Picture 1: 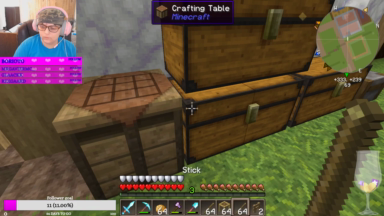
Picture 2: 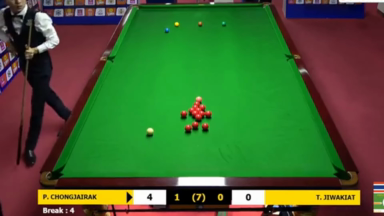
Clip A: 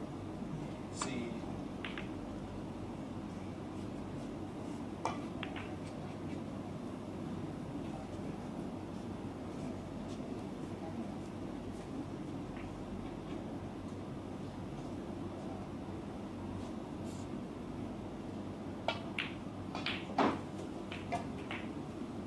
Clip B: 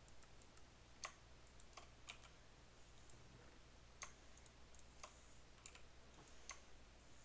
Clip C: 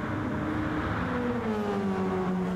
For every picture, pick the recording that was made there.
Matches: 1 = B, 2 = A